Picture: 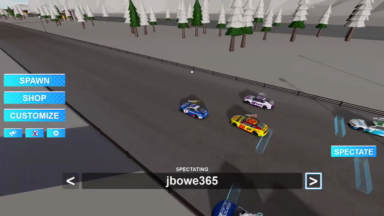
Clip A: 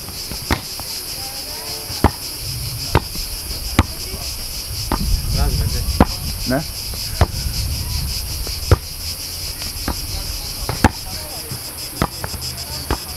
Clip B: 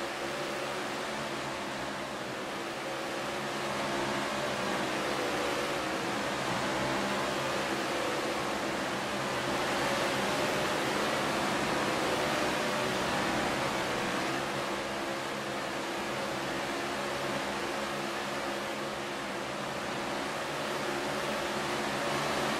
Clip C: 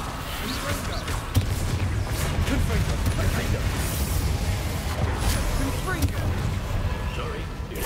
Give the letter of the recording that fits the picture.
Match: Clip B